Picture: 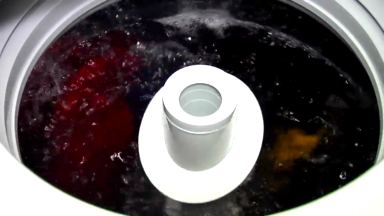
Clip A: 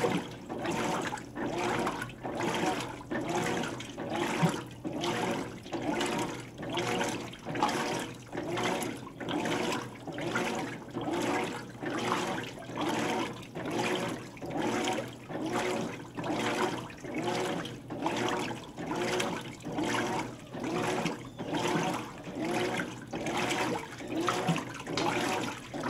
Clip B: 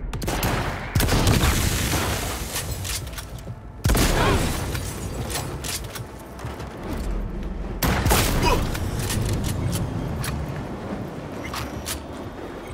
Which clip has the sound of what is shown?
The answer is A